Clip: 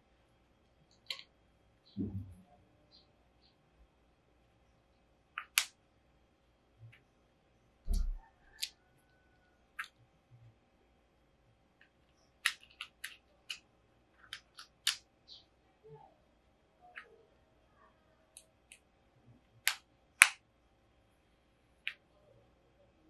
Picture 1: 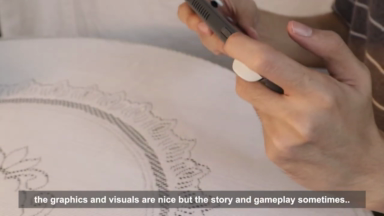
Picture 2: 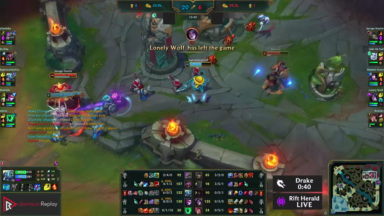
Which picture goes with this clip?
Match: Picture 1